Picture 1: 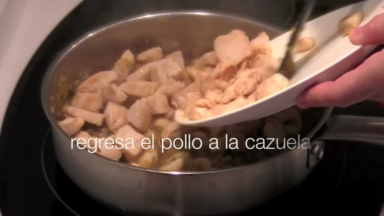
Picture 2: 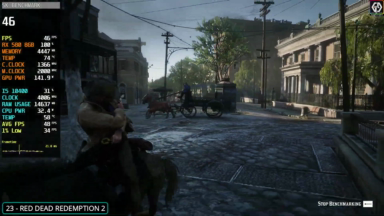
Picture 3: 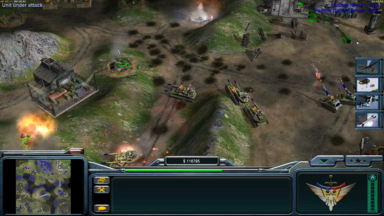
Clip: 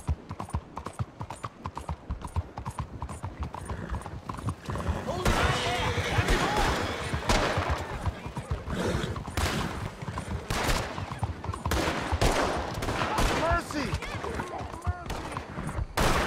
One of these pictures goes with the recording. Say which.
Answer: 2